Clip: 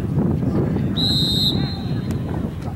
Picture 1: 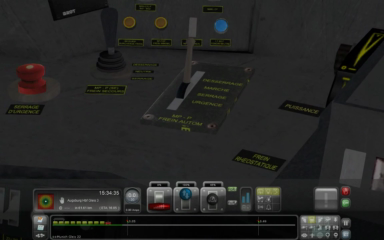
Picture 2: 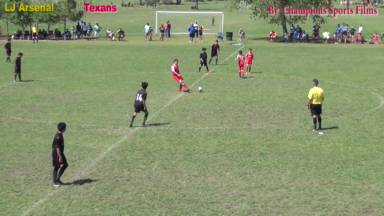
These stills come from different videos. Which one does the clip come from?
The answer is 2